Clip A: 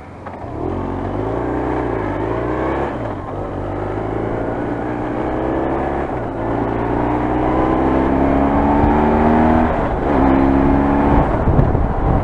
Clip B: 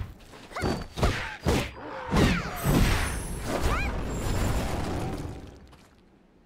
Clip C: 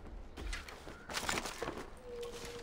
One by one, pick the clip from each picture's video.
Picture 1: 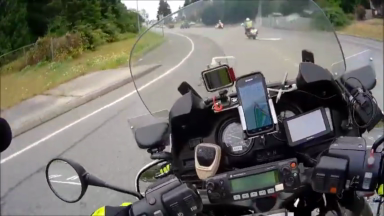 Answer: A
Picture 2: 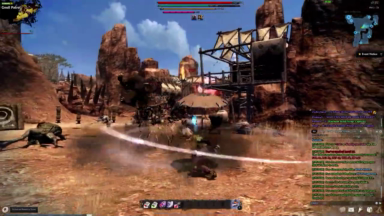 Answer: B